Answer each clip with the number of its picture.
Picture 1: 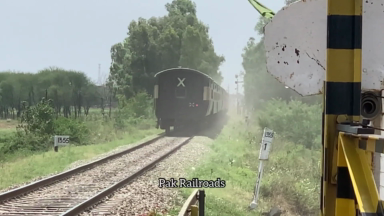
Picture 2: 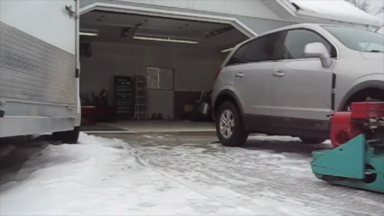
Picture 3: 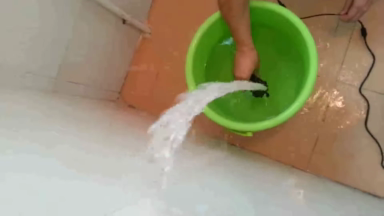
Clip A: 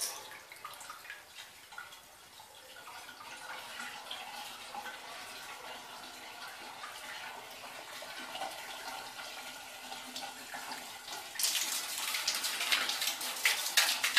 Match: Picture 3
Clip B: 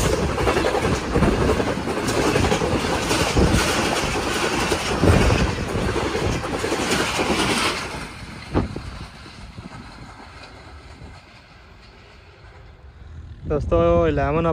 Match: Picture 1